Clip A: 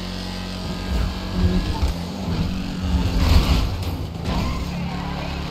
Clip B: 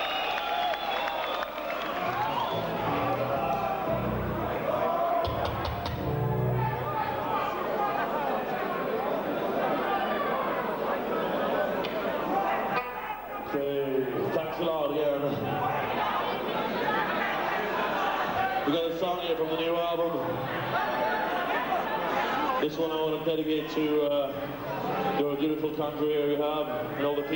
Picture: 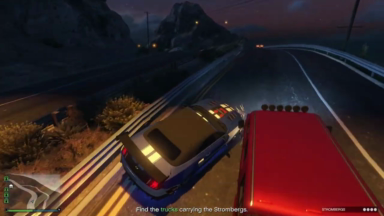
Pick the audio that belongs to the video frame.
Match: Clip A